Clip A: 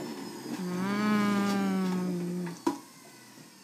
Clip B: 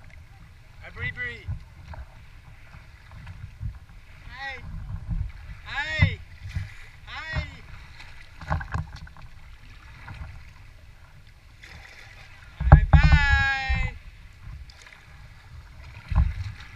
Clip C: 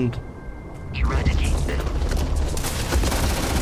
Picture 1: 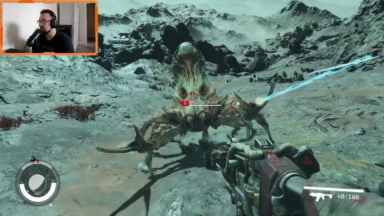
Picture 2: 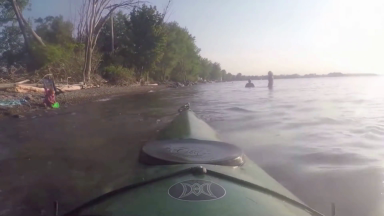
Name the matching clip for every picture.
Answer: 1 C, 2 B